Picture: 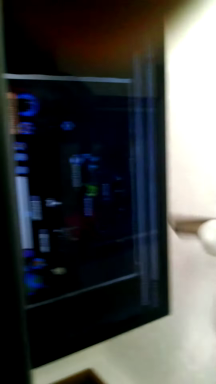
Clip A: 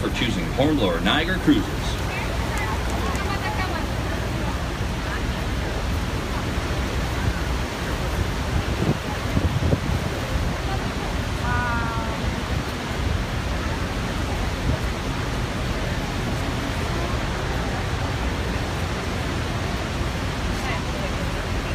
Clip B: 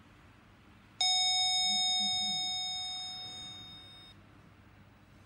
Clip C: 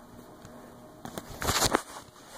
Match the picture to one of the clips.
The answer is C